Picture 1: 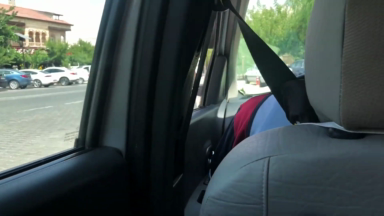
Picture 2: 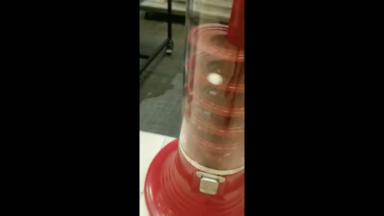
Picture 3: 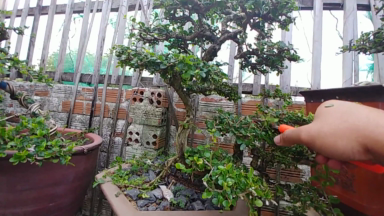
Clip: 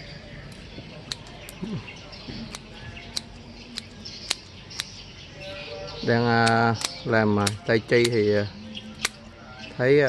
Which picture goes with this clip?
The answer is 3